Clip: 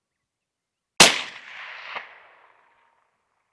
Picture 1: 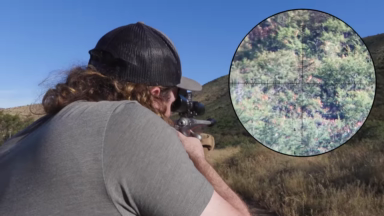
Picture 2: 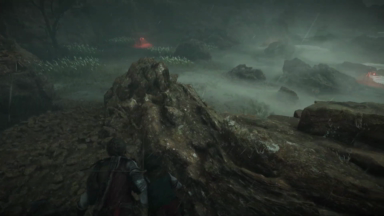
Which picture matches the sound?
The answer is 1